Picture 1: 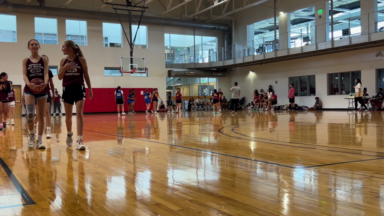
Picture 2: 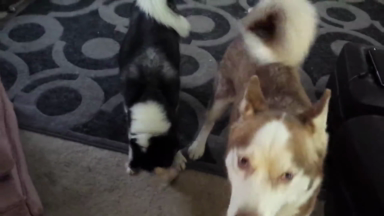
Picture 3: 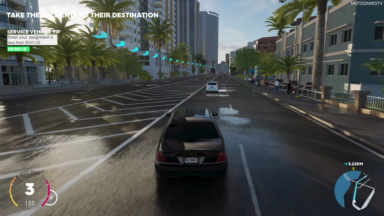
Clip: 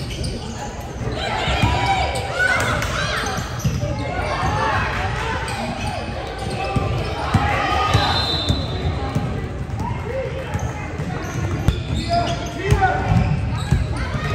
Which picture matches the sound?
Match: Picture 1